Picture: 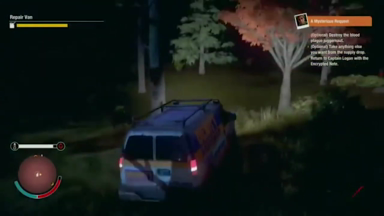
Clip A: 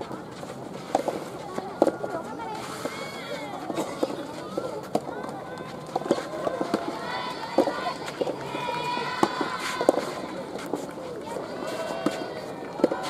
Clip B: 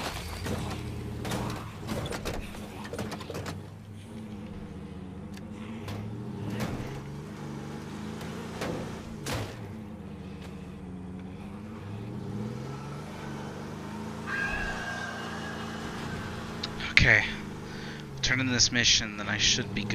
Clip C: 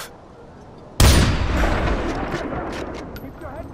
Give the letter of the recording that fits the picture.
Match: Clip B